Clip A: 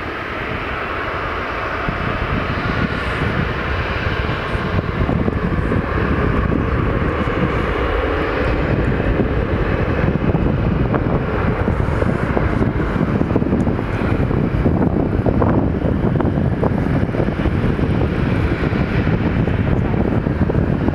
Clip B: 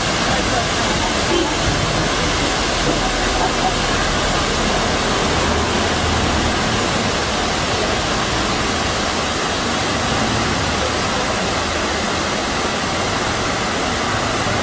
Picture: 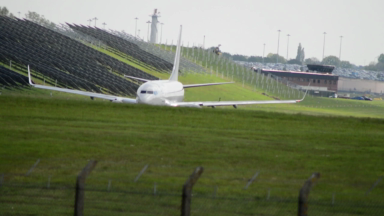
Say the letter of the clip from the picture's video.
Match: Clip A